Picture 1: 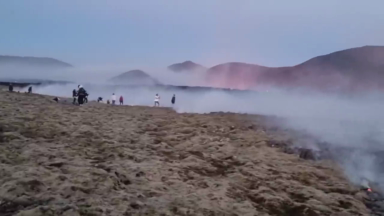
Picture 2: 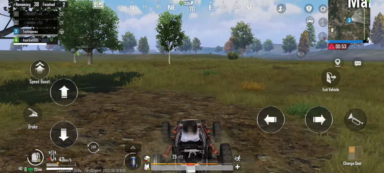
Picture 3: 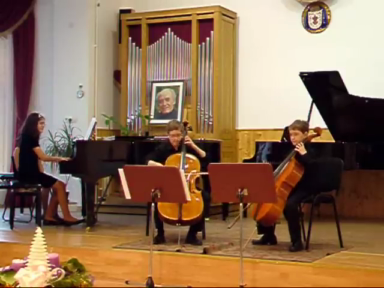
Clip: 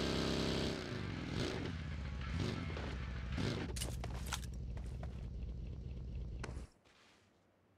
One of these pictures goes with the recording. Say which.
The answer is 2